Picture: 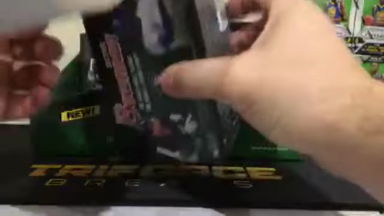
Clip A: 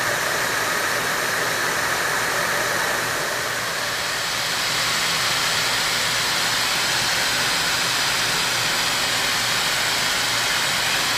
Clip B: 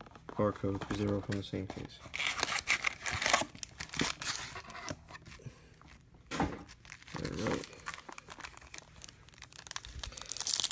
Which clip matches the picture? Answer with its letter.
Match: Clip B